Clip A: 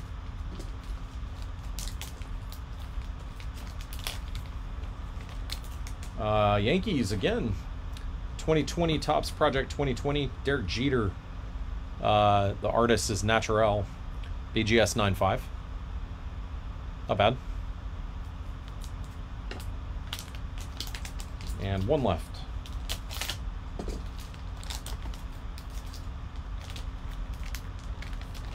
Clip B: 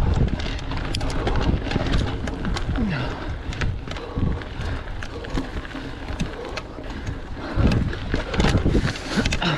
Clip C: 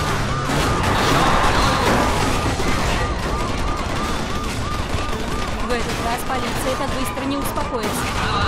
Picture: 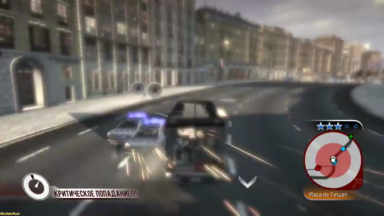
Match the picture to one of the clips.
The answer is C